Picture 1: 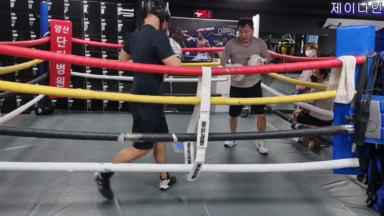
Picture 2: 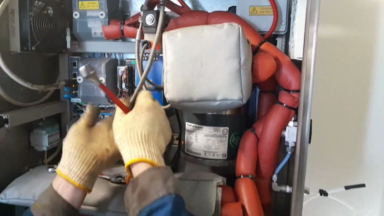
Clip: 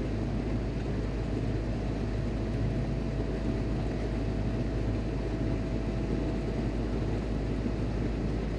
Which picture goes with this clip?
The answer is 2